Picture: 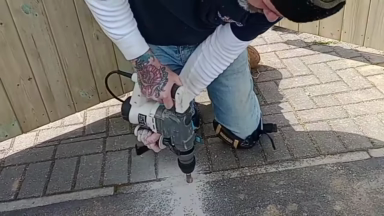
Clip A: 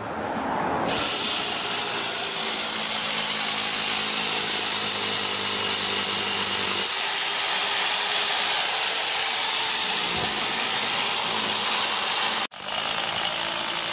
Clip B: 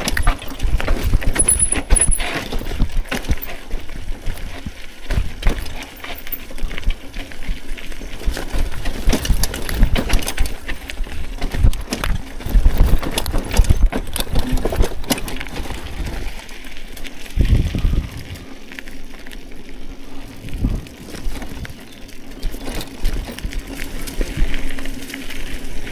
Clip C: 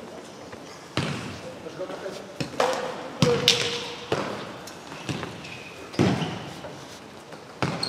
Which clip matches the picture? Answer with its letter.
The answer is A